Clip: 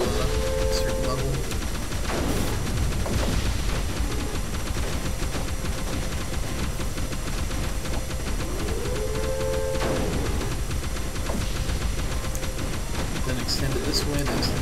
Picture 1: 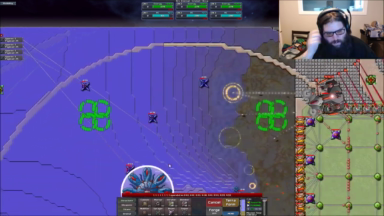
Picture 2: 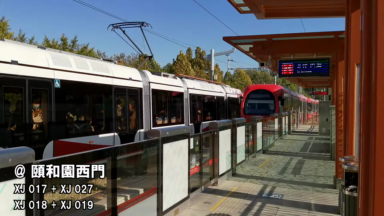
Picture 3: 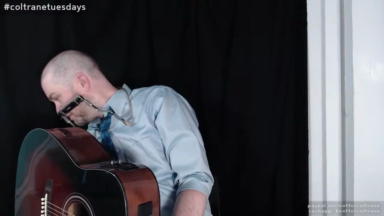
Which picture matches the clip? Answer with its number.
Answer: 1